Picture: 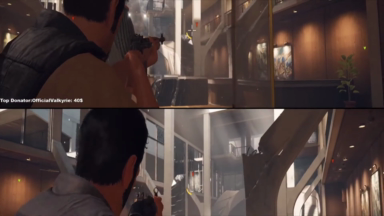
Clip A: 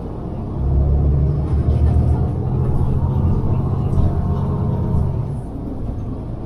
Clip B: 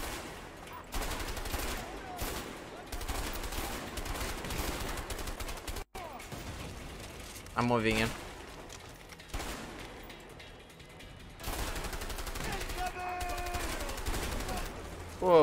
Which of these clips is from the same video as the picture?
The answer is B